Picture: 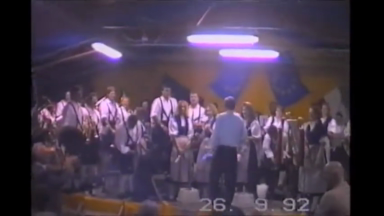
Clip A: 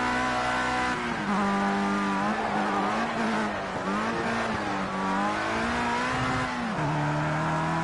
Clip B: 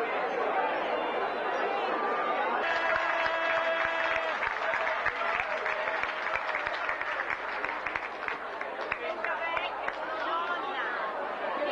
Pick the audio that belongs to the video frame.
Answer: B